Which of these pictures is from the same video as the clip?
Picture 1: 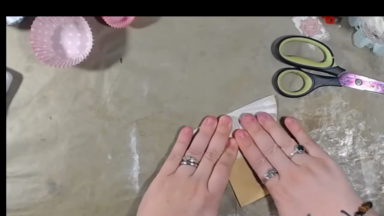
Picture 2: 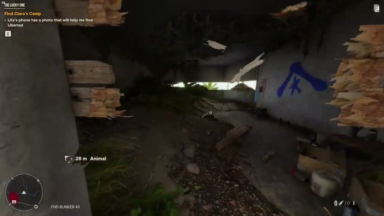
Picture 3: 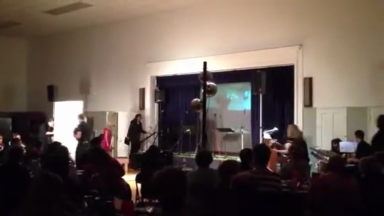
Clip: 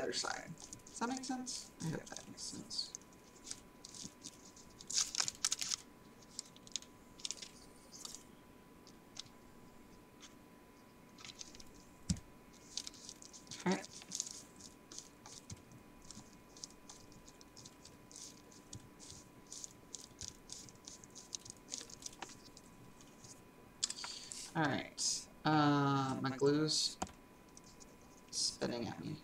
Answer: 1